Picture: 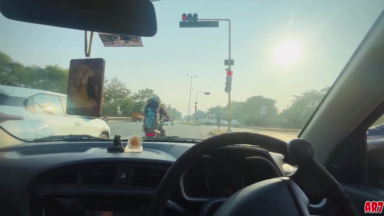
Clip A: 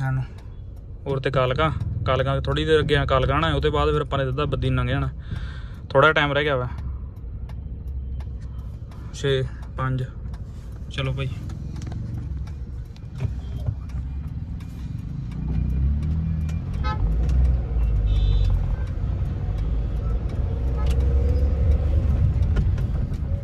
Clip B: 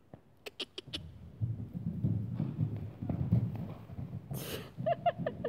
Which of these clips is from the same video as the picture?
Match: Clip A